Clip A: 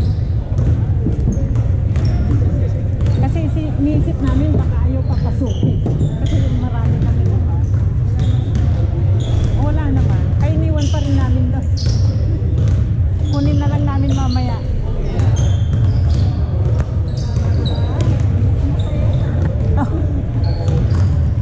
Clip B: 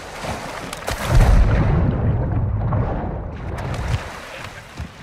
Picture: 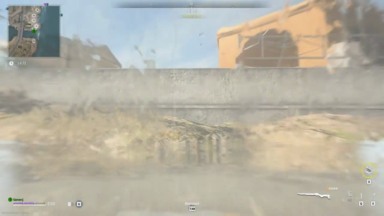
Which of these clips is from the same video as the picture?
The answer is B